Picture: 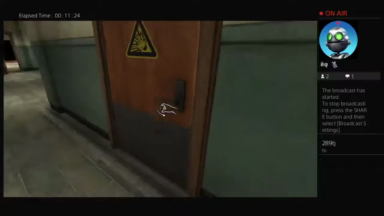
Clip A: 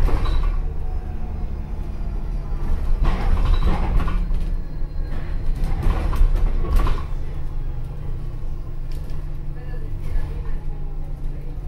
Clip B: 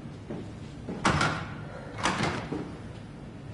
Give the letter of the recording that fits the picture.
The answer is B